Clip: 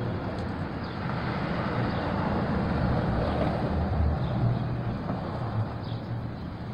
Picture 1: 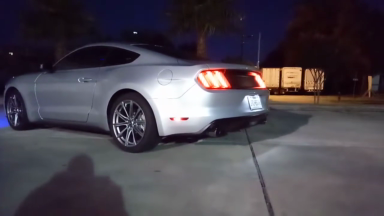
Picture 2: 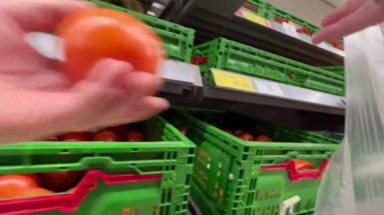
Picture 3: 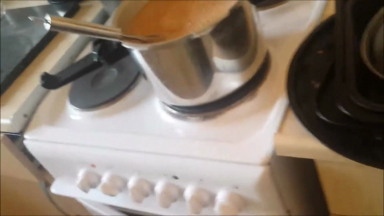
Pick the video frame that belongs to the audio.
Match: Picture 1